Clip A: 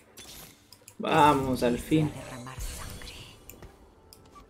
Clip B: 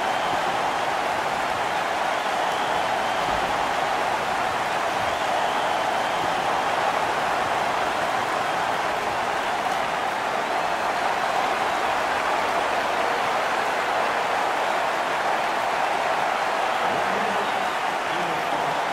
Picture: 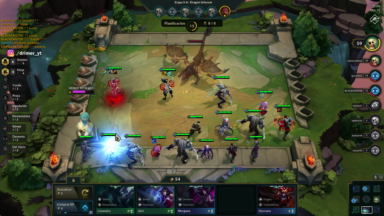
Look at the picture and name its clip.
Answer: A